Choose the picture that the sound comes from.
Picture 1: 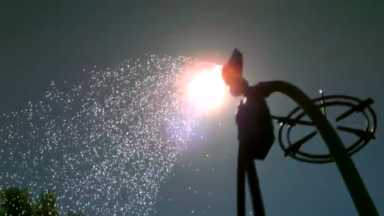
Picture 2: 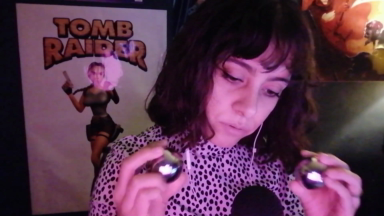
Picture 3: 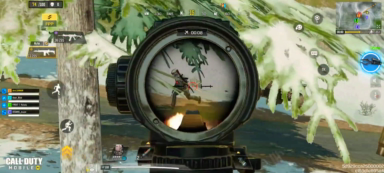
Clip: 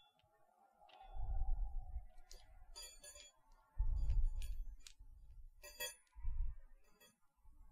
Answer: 2